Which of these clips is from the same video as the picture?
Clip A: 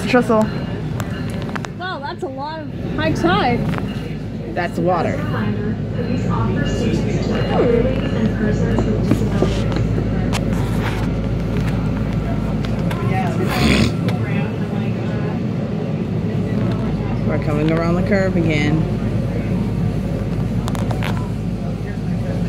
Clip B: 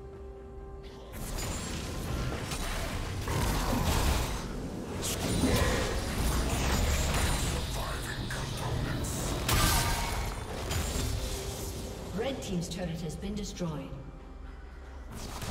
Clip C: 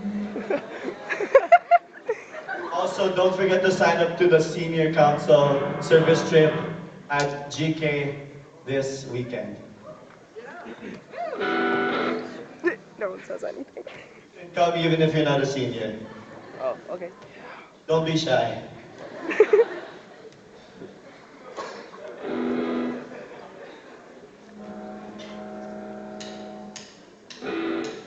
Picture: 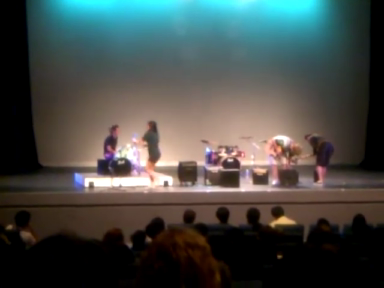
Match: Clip C